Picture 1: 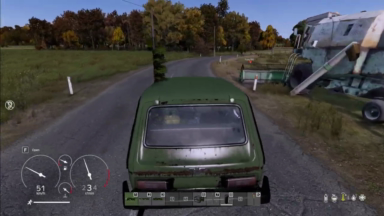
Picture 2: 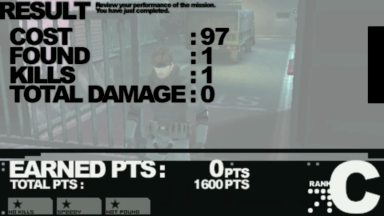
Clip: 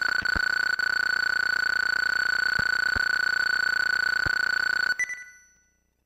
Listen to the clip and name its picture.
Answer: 2